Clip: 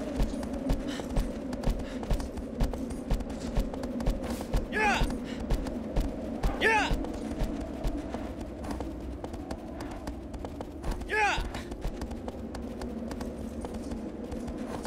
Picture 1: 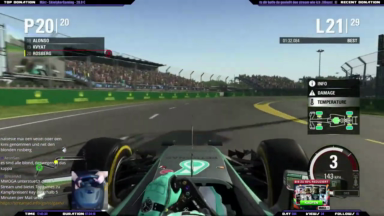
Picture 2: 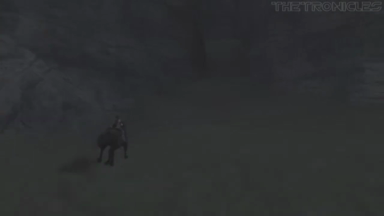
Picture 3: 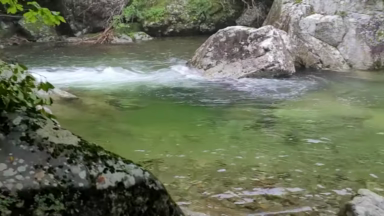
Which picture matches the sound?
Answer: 2